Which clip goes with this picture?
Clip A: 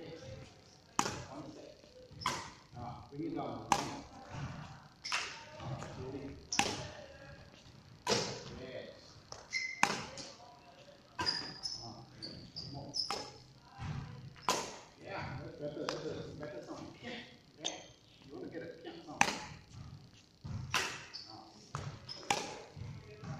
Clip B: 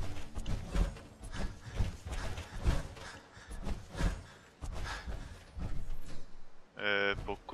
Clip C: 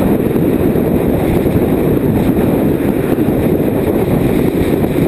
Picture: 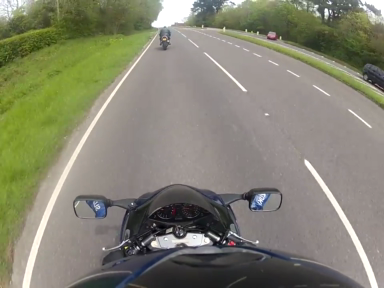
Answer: C